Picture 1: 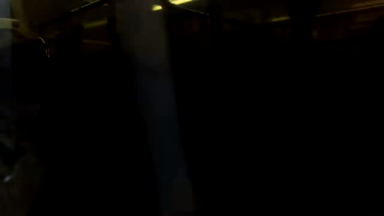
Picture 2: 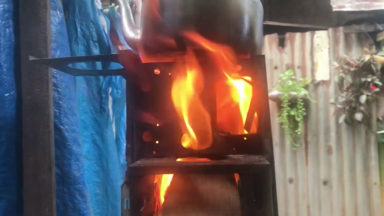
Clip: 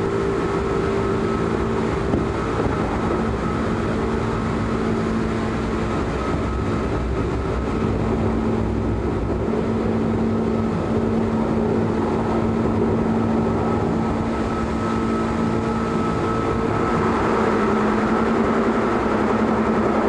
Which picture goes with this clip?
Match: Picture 1